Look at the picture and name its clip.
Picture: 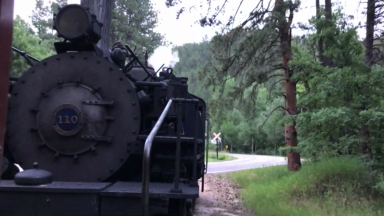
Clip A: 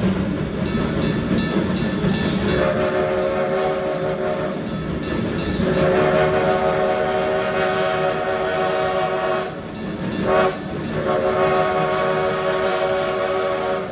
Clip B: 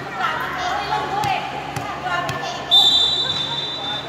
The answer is A